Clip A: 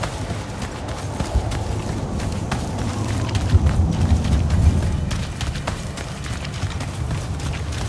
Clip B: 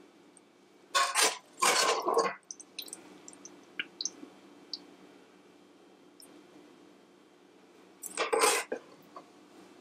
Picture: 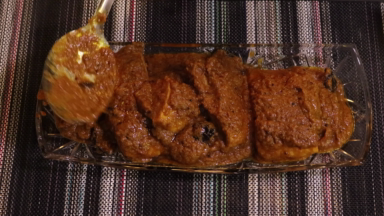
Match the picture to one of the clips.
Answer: B